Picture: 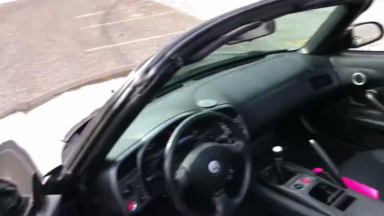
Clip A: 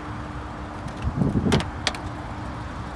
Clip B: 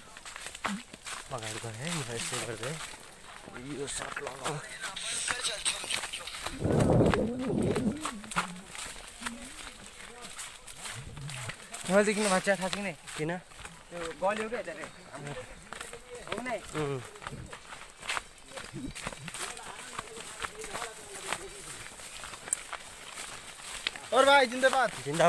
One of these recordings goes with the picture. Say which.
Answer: A